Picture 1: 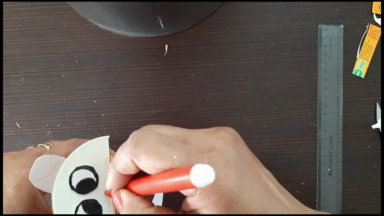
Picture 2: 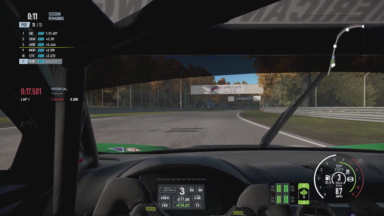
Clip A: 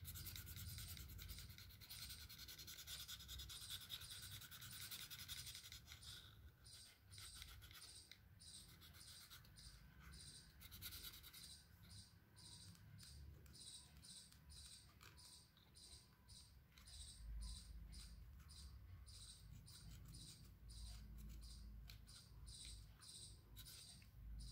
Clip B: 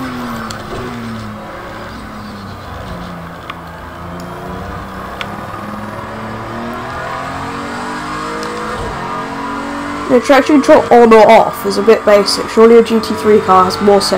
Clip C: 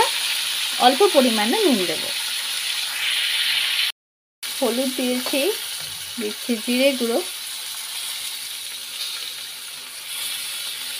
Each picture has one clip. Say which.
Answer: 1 A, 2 B